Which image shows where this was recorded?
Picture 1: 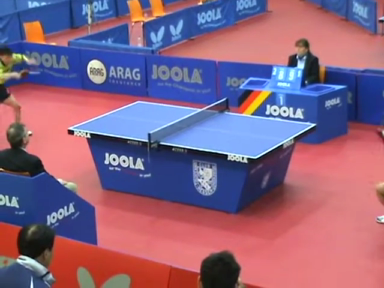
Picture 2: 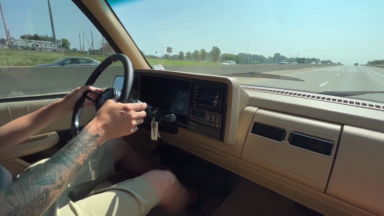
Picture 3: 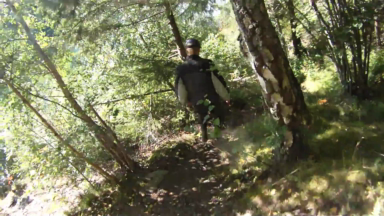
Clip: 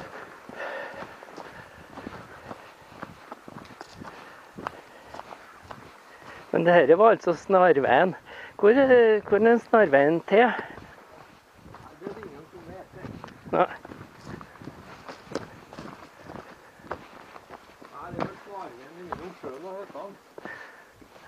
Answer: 3